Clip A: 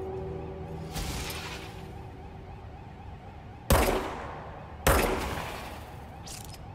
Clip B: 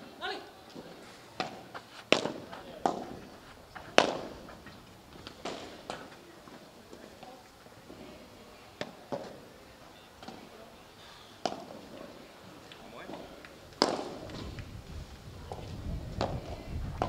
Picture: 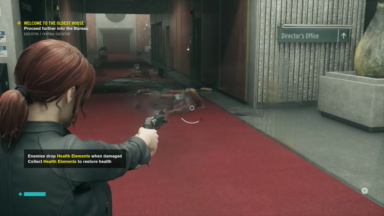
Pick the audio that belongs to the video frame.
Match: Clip A